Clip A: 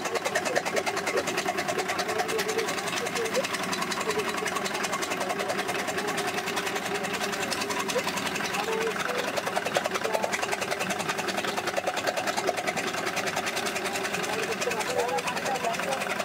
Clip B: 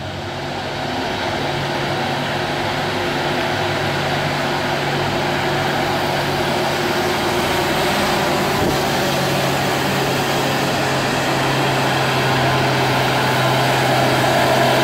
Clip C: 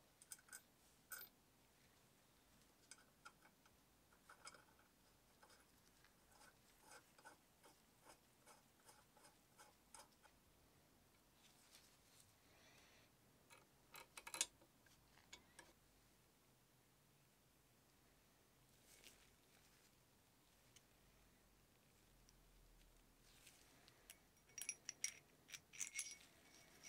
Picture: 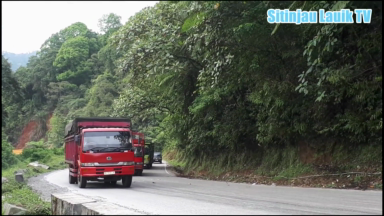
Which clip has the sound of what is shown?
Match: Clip B